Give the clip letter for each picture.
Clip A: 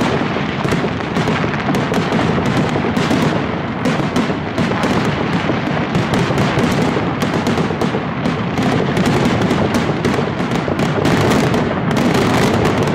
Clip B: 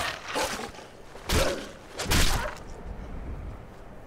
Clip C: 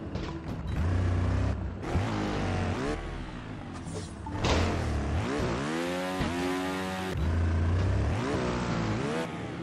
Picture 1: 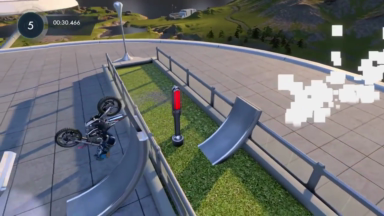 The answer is C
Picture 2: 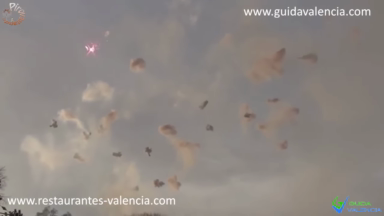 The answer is A